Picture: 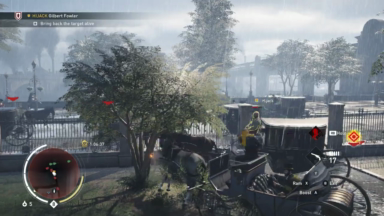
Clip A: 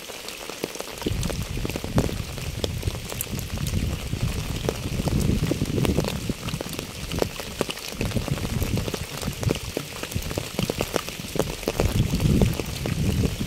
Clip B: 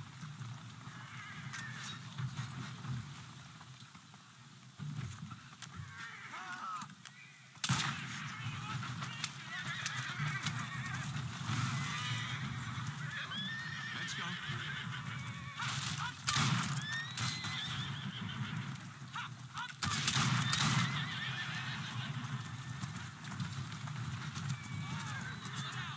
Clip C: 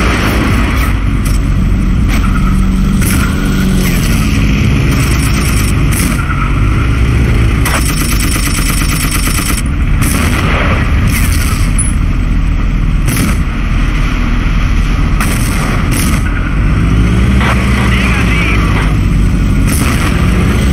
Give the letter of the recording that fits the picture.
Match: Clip B